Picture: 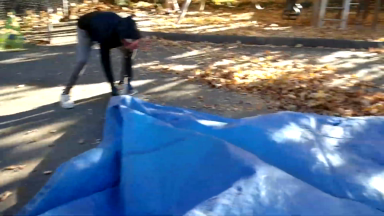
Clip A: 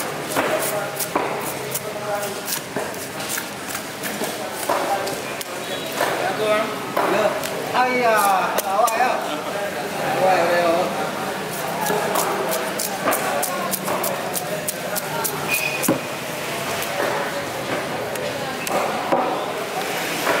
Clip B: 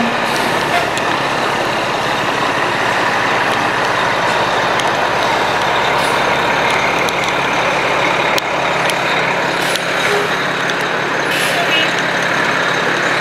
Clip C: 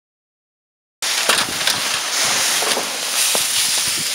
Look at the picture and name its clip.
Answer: C